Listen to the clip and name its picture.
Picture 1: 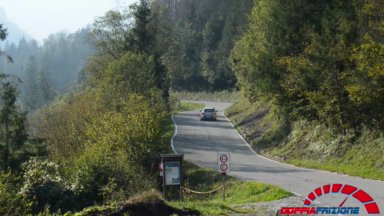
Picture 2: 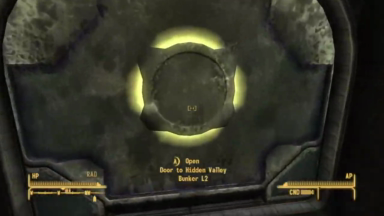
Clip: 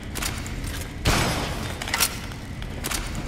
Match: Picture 2